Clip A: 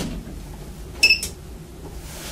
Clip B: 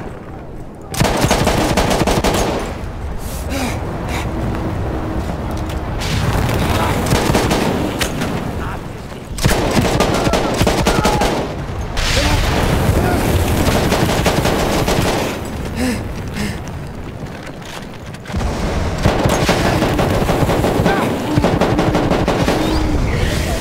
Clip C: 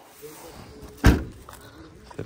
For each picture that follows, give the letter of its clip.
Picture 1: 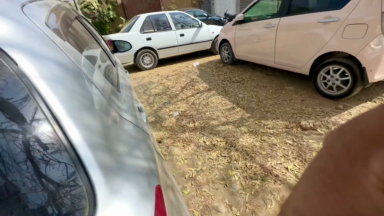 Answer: C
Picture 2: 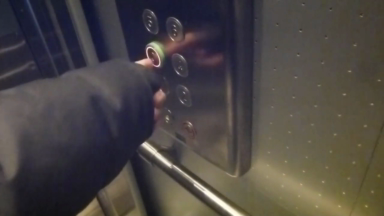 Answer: A